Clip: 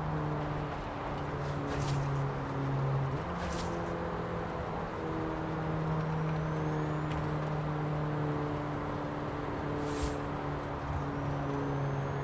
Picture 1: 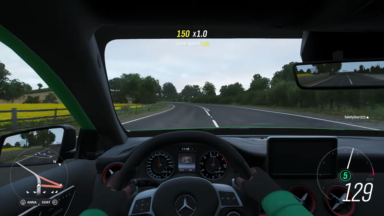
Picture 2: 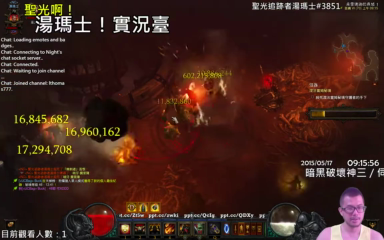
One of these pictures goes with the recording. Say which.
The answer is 1